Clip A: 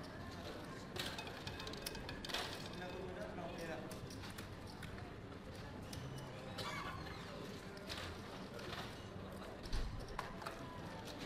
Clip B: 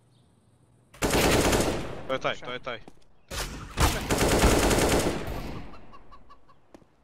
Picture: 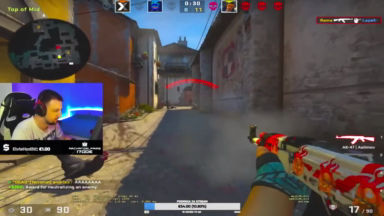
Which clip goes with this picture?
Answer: B